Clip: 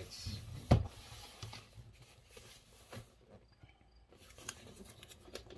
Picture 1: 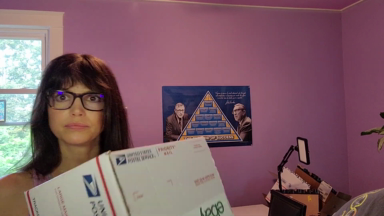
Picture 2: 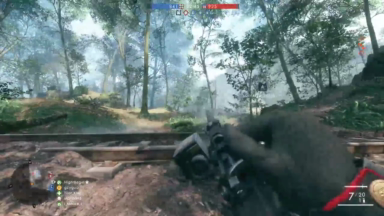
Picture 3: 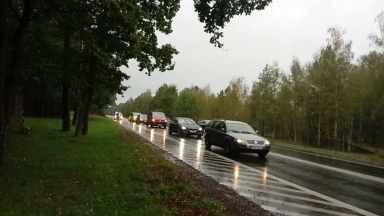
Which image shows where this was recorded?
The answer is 1